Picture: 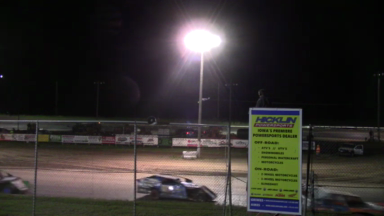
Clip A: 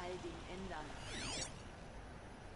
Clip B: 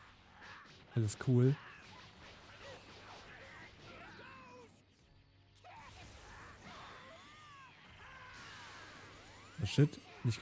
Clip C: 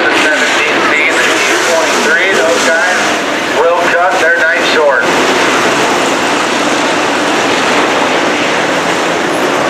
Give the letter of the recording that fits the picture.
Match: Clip C